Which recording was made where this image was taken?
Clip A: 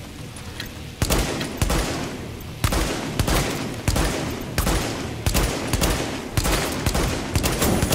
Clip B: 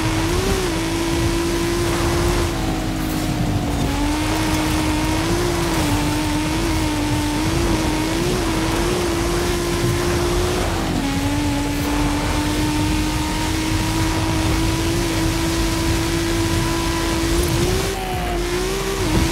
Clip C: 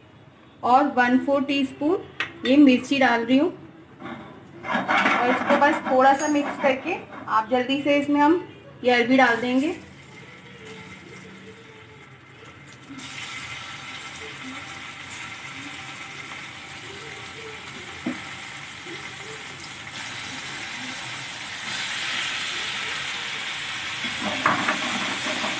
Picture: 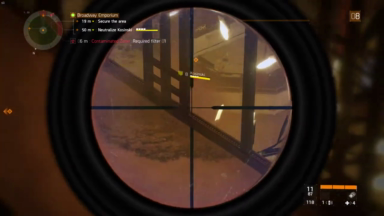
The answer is A